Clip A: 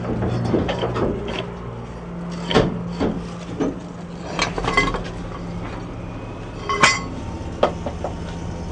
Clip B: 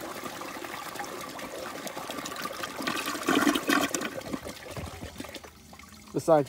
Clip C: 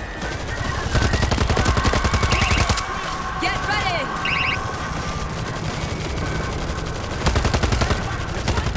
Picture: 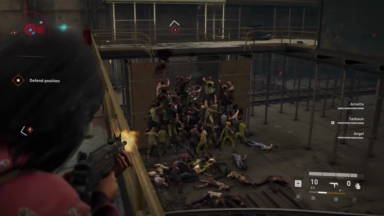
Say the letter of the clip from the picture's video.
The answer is C